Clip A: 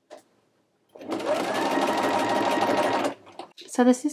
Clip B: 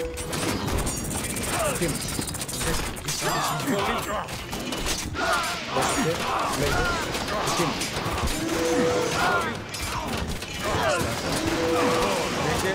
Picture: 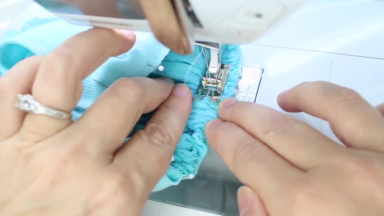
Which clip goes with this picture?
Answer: A